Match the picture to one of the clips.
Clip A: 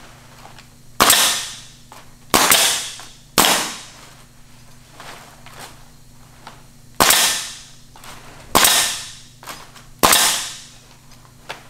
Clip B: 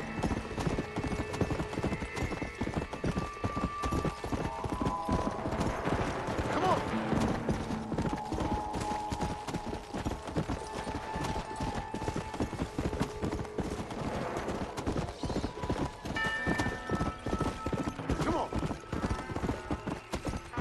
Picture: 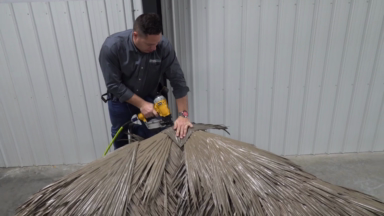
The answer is A